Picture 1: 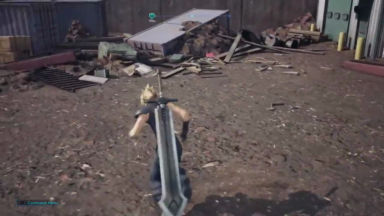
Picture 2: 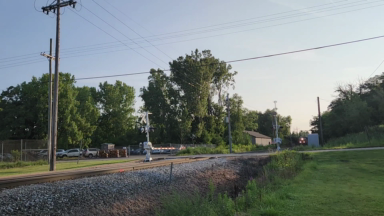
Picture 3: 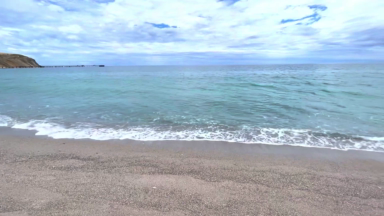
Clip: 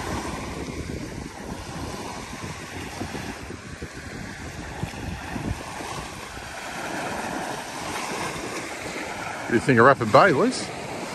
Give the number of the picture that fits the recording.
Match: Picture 3